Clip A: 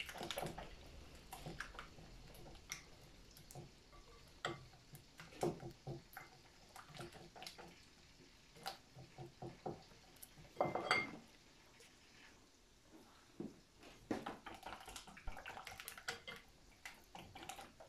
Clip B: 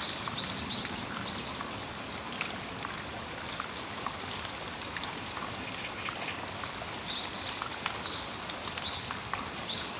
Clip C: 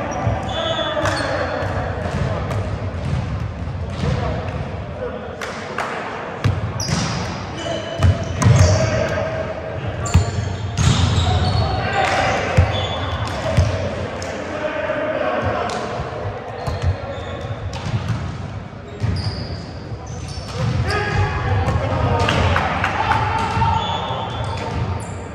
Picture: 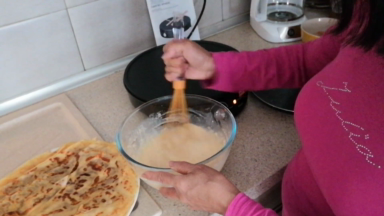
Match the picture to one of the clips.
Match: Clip A